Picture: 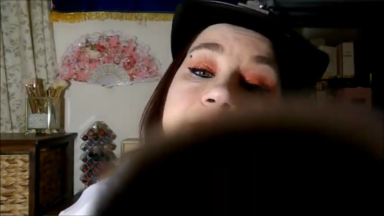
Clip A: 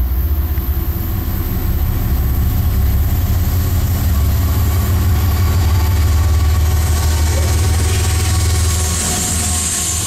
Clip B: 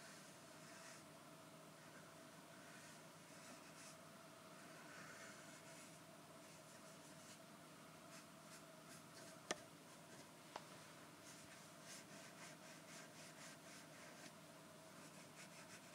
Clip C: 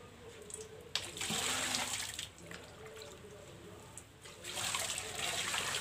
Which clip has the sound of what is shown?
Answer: B